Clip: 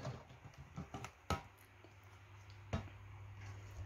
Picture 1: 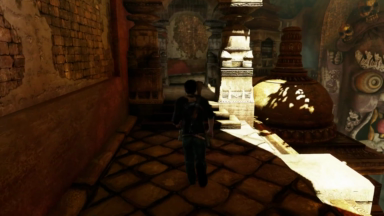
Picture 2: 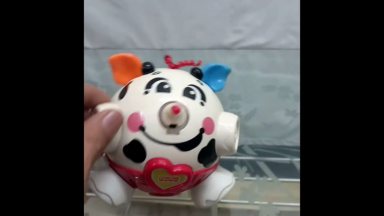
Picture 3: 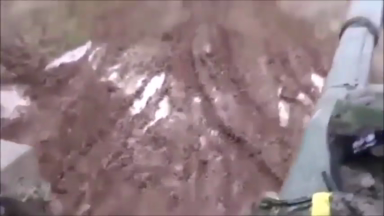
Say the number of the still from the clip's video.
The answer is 2